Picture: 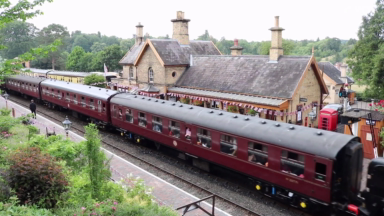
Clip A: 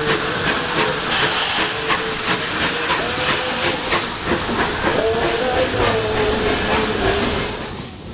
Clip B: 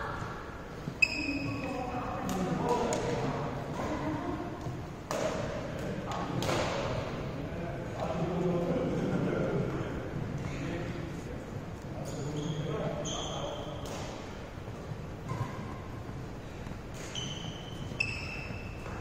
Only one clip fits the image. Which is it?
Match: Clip A